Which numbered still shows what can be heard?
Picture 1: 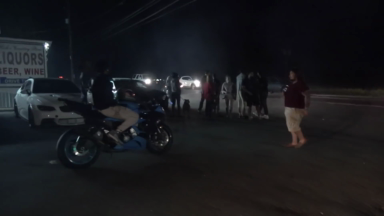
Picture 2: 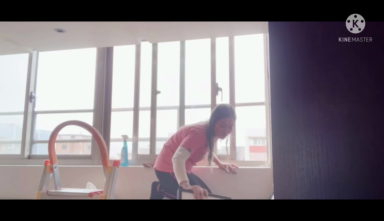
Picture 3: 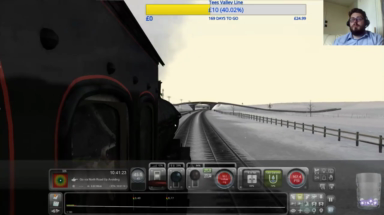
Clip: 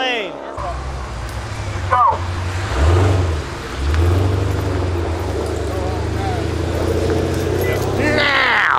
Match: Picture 1